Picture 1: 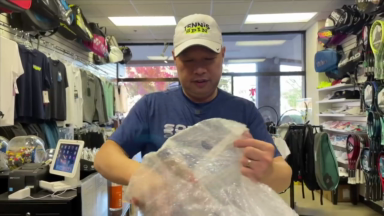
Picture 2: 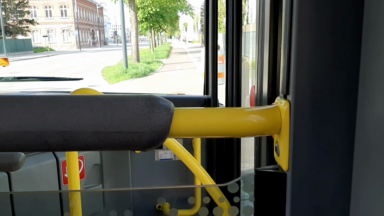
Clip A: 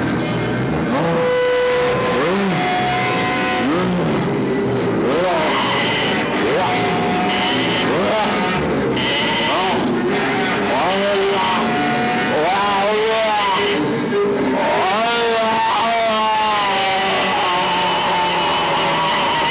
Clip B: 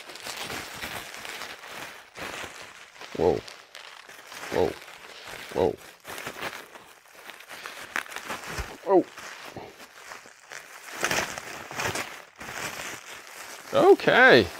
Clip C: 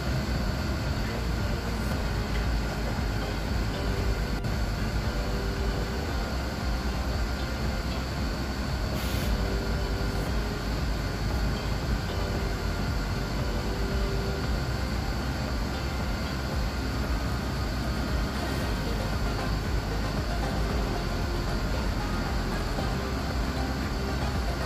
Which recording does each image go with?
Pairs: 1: B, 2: C